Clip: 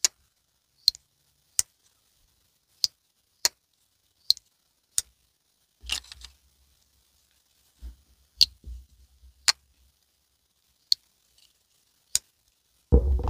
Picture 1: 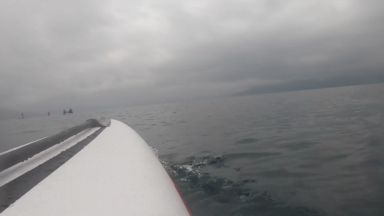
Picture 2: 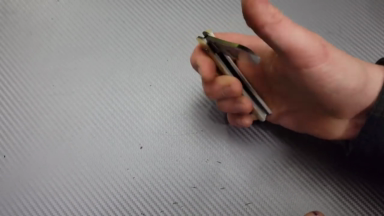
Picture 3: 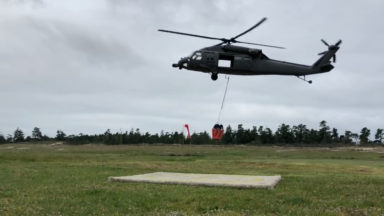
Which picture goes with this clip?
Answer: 2